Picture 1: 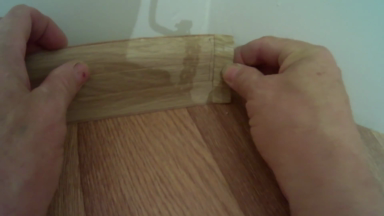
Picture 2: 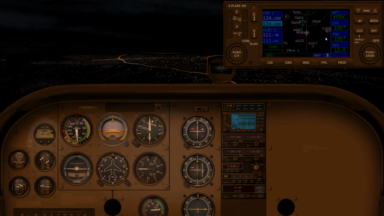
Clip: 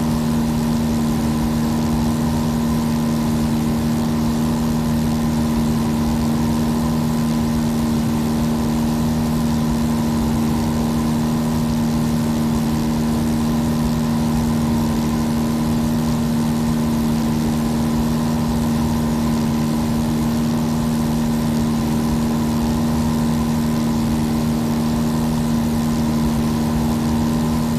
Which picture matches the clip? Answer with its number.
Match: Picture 2